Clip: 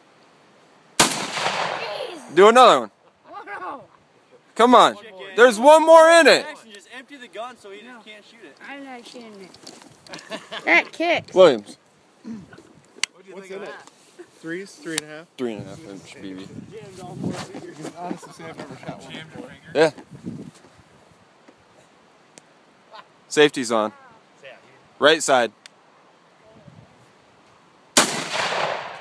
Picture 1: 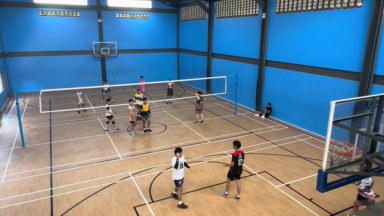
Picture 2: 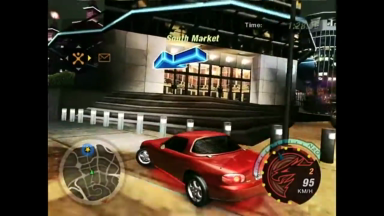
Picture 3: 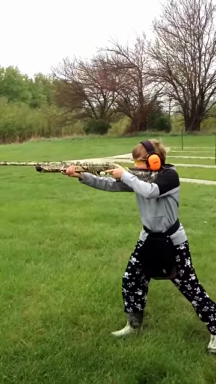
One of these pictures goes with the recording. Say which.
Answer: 3